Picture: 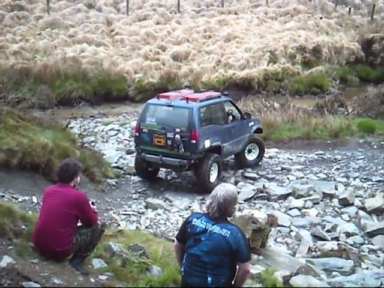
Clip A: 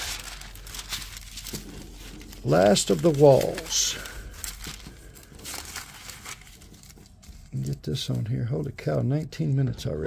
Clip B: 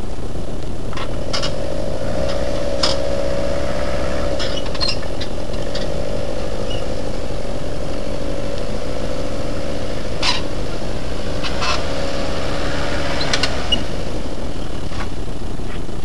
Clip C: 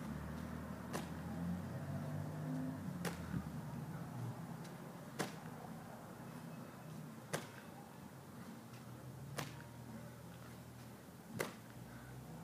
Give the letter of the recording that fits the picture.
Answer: B